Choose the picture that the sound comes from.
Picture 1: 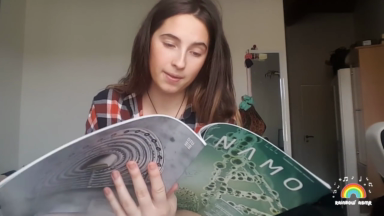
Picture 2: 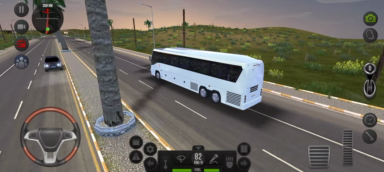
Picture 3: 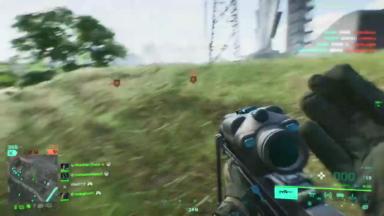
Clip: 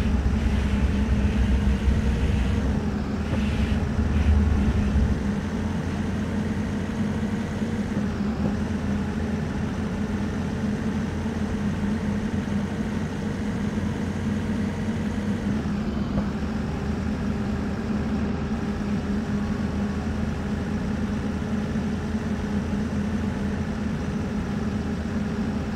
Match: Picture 2